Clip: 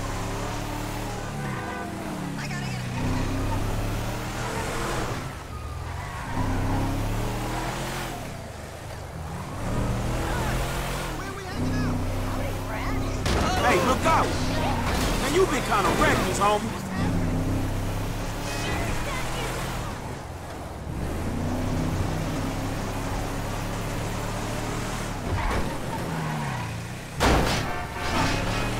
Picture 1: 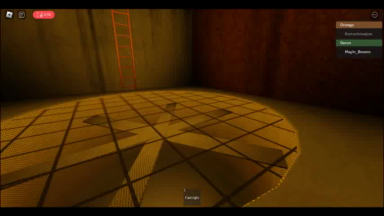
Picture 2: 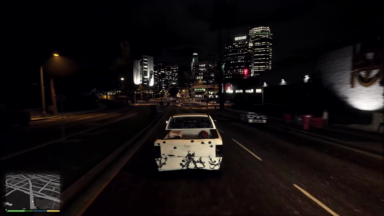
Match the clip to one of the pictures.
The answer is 2